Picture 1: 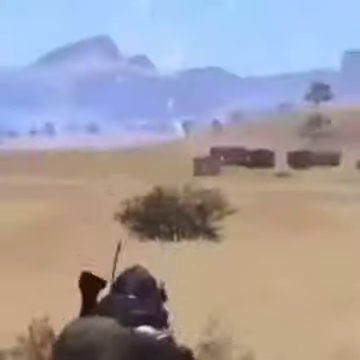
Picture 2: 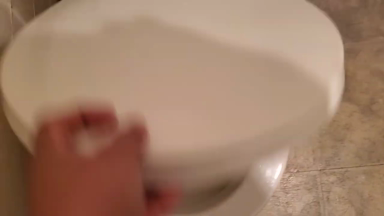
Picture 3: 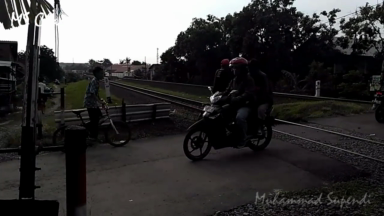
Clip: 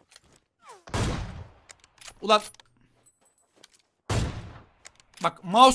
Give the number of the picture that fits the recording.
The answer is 1